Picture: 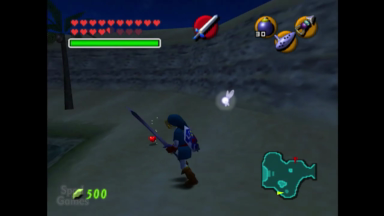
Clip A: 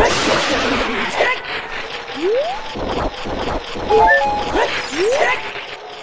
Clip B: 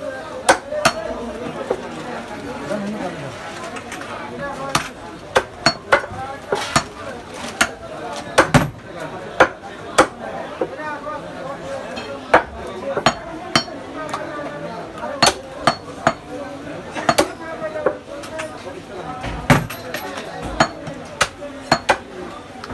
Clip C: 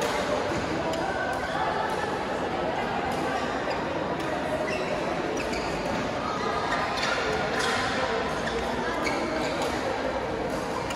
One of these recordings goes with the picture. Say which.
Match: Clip A